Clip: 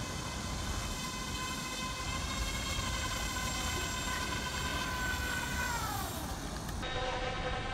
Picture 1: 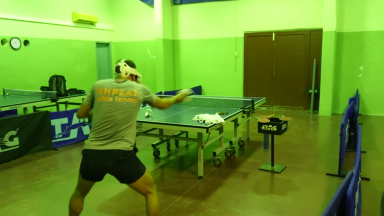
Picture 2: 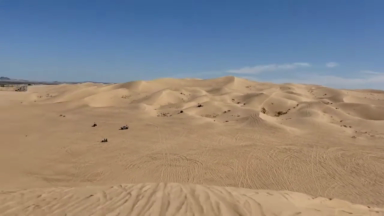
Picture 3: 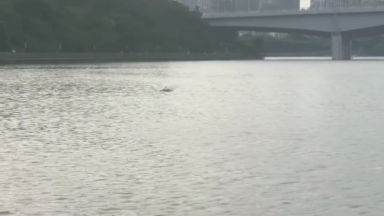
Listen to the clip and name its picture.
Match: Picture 3